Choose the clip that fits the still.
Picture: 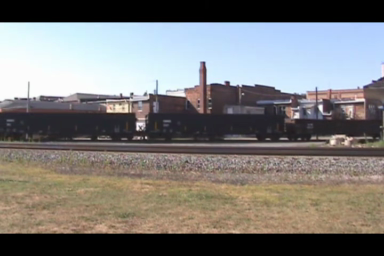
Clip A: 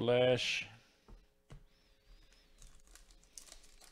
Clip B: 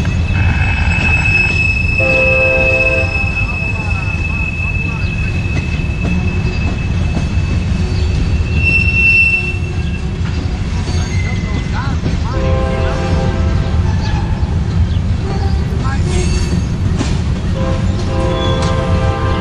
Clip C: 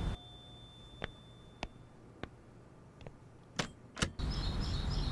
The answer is B